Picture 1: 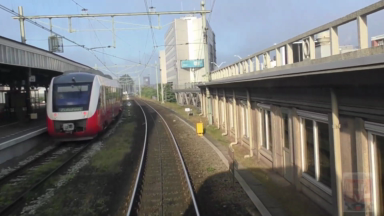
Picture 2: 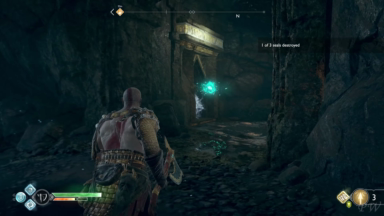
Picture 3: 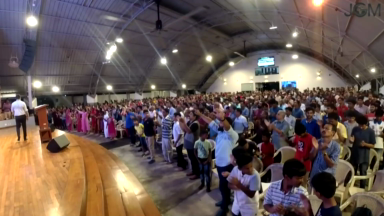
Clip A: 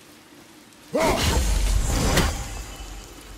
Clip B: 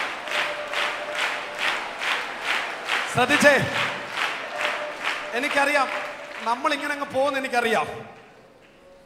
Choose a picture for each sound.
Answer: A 2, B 3